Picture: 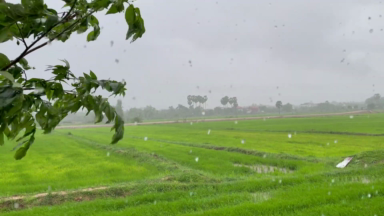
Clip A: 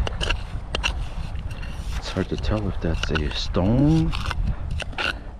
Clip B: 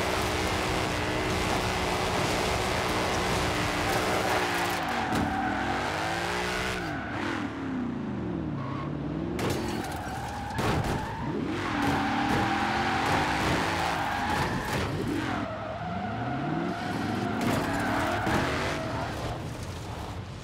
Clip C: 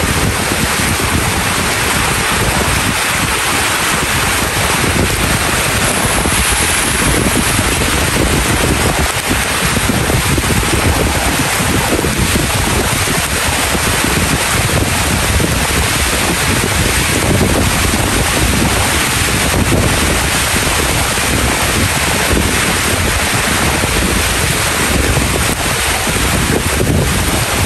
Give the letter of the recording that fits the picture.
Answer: C